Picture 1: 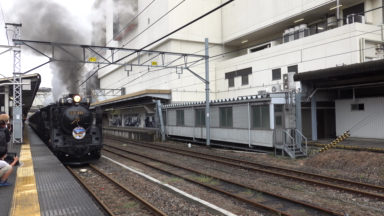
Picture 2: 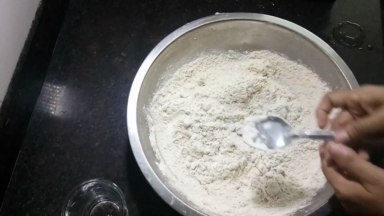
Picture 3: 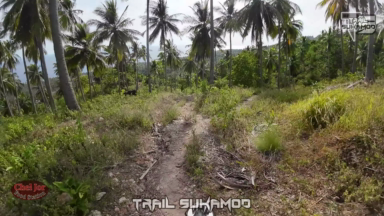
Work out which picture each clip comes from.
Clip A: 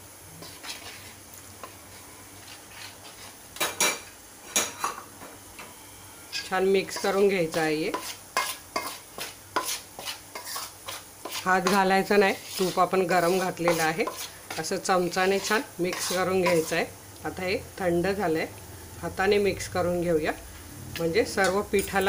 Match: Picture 2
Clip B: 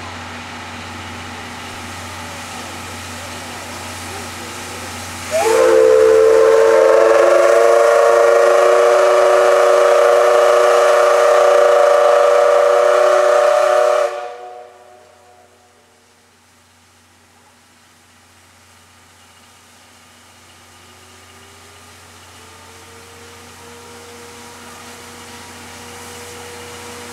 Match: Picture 1